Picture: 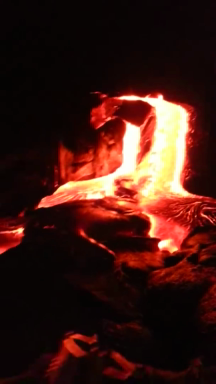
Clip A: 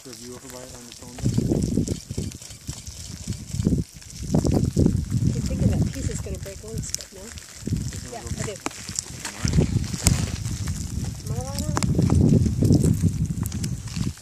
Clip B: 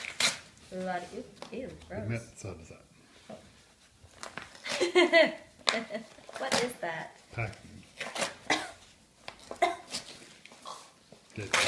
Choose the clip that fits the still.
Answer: A